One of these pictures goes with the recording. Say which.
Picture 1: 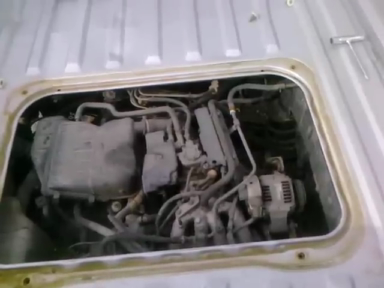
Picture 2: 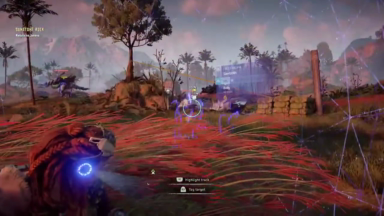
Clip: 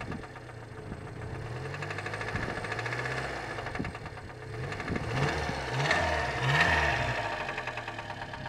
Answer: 1